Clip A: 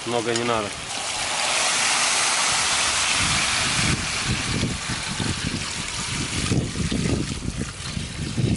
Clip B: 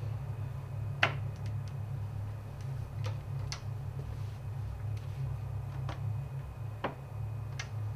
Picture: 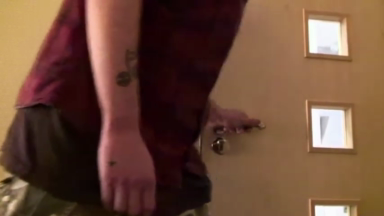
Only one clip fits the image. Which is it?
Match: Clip B